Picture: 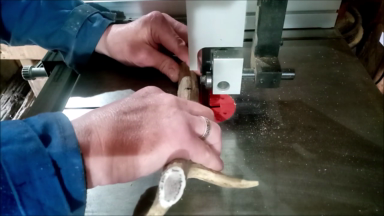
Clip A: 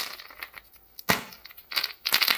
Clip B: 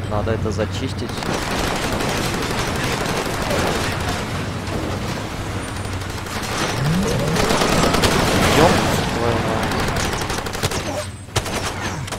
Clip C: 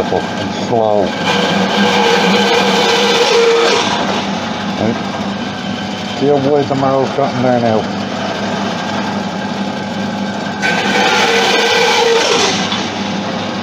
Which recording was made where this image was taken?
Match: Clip C